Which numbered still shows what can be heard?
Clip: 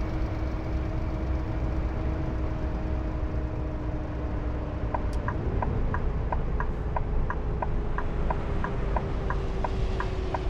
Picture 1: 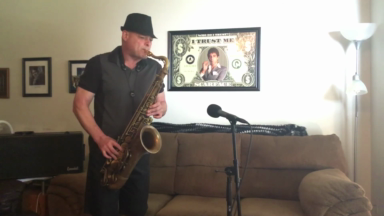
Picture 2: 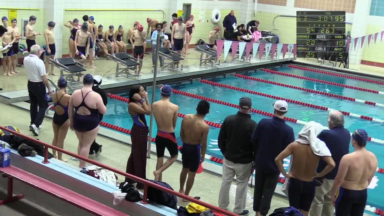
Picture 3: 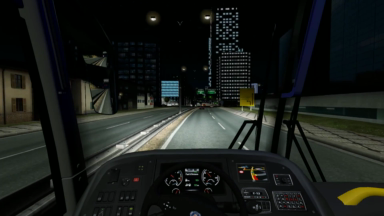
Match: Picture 3